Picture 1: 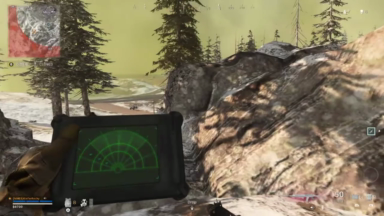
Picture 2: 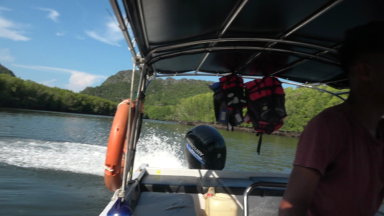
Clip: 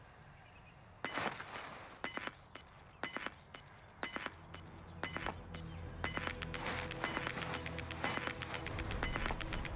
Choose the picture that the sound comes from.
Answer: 1